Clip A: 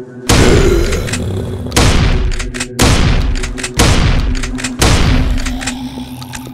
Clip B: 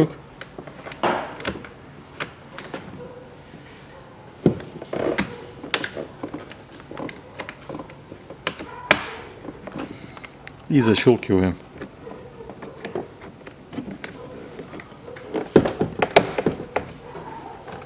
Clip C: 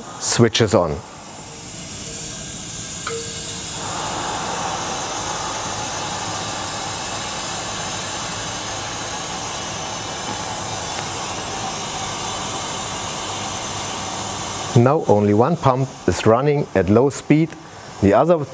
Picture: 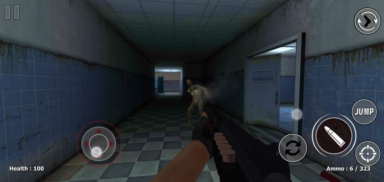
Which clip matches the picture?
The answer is A